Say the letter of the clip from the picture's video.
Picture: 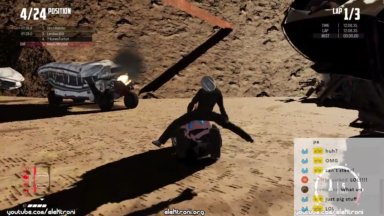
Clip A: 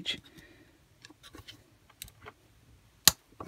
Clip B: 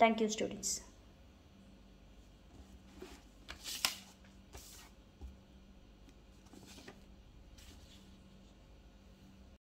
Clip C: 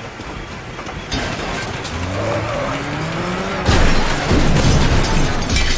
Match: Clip C